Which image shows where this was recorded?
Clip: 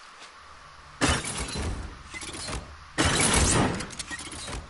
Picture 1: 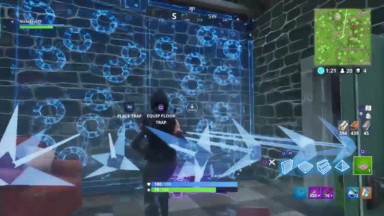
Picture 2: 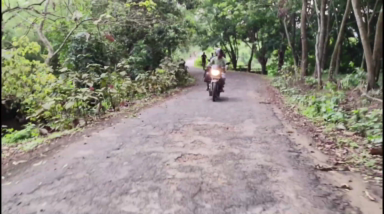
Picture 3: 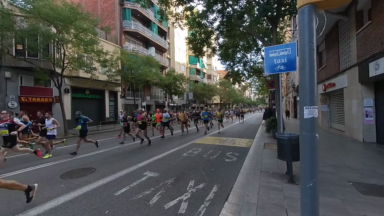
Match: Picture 1